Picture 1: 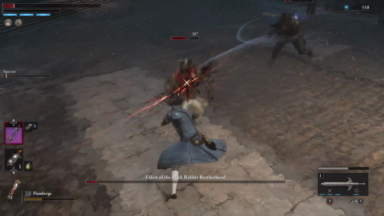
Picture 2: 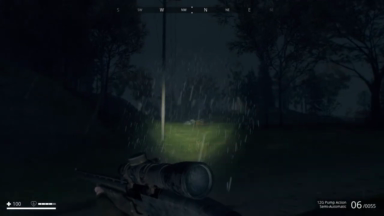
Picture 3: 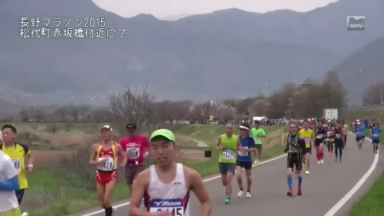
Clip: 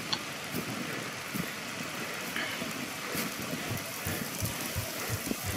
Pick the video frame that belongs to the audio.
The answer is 2